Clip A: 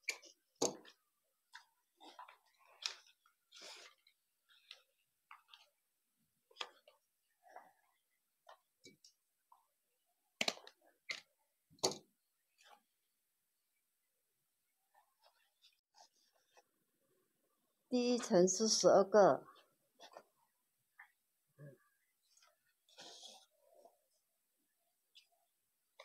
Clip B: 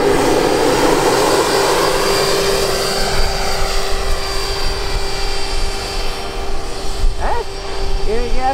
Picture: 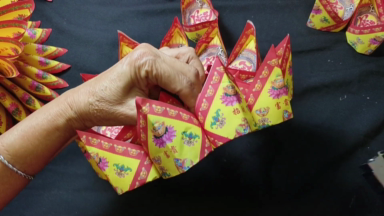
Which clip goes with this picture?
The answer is A